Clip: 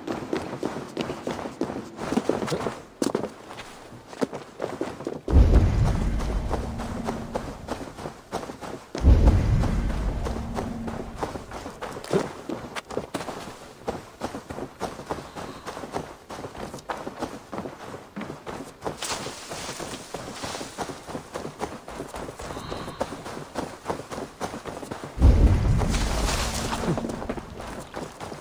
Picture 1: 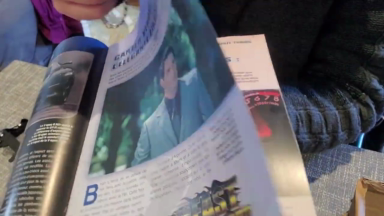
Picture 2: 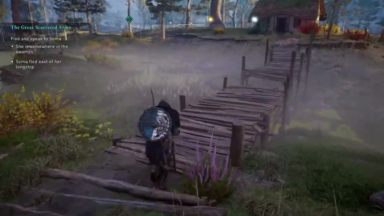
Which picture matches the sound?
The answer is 2